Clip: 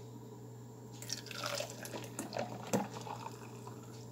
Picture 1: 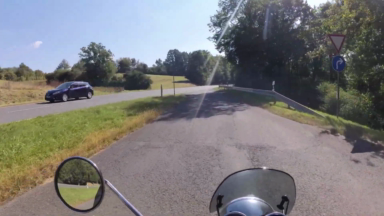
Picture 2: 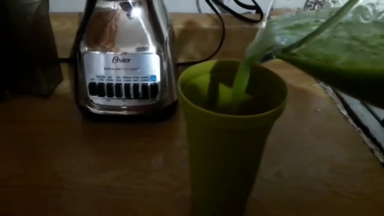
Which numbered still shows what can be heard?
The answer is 2